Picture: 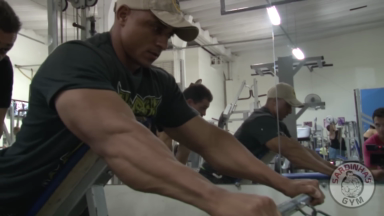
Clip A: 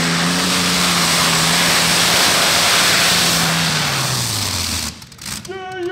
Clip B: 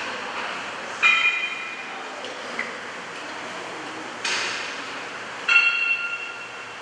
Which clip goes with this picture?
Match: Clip B